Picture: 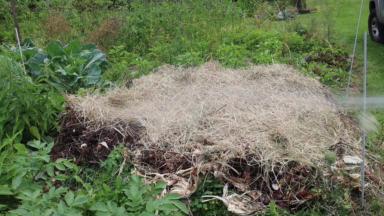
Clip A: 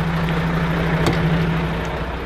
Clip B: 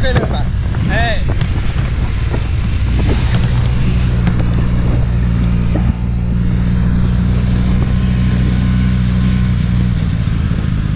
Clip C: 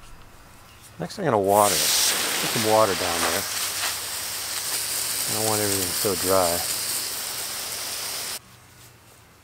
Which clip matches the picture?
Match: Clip C